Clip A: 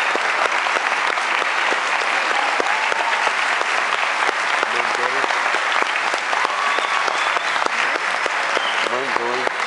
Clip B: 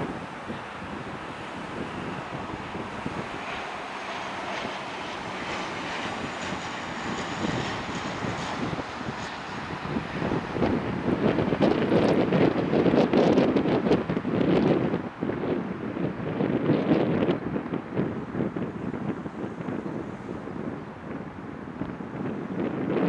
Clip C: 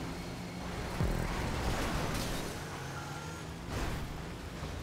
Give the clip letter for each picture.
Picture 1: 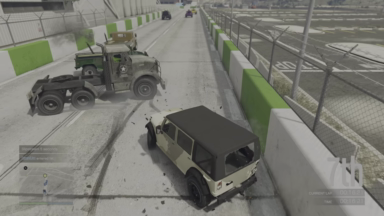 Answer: C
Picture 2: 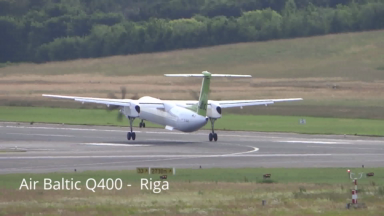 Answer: B